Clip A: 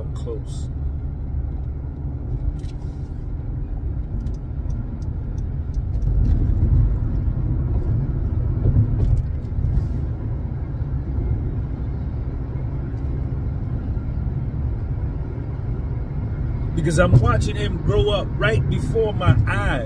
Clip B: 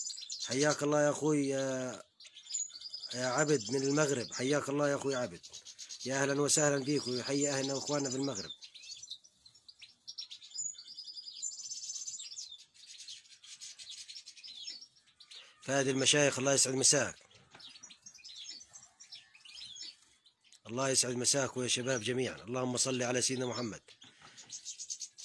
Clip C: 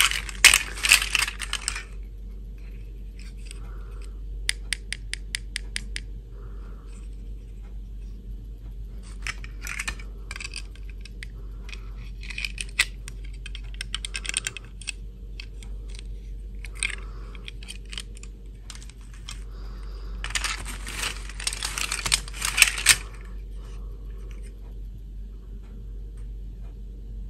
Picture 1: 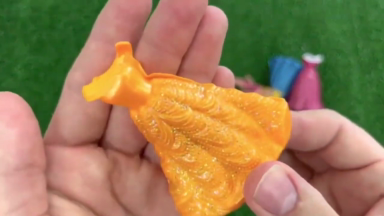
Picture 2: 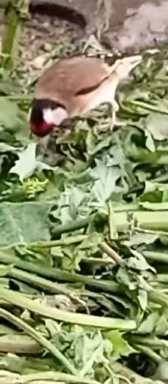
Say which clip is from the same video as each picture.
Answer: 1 C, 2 B